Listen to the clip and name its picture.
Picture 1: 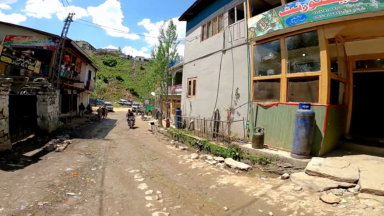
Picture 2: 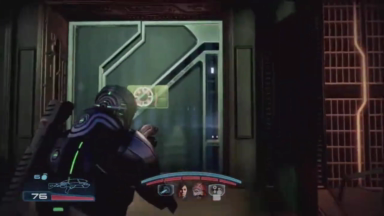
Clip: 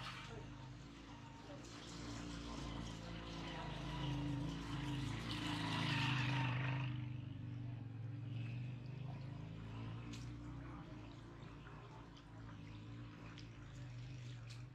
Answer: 1